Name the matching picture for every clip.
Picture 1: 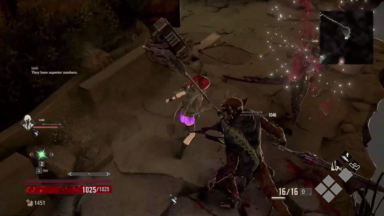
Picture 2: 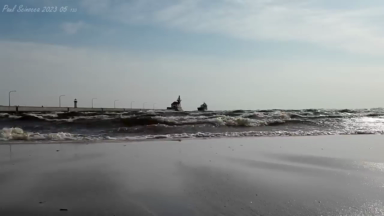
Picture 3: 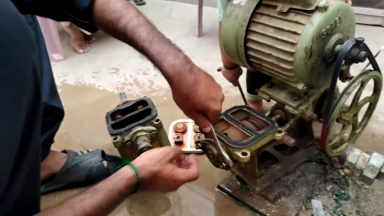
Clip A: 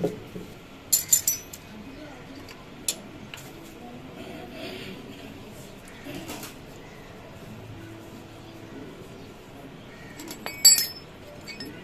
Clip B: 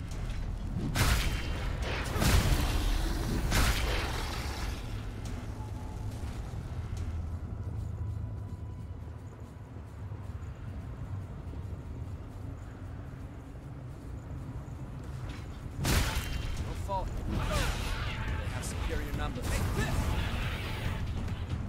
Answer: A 3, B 1